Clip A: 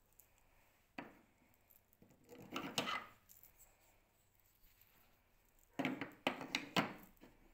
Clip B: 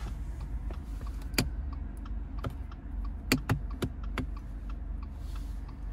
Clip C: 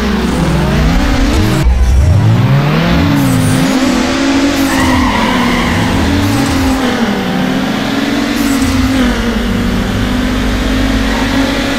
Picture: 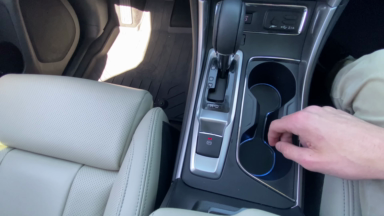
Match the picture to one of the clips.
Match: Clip B